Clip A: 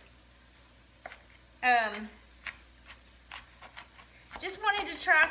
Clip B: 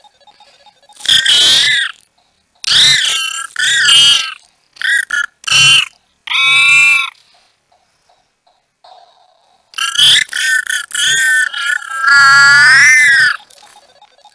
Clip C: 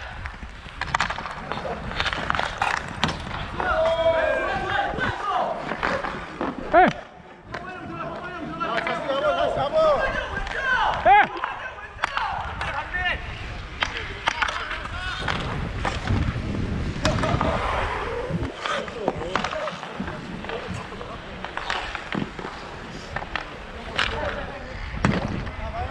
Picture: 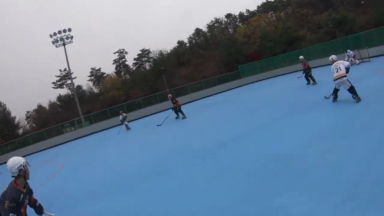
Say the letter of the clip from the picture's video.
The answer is C